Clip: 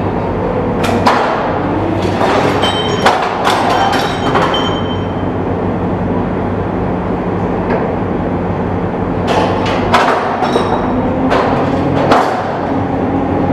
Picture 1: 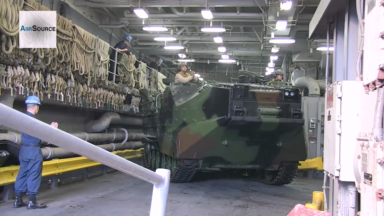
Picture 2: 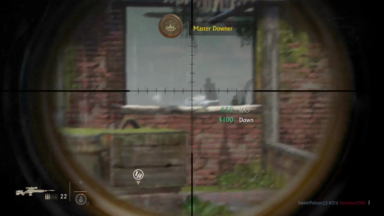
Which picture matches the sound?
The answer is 1